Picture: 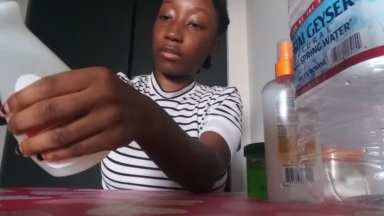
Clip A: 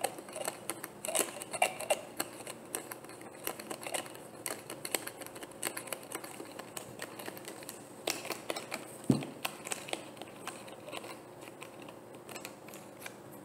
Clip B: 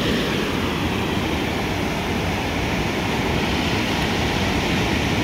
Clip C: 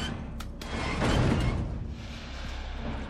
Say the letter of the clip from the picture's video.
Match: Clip A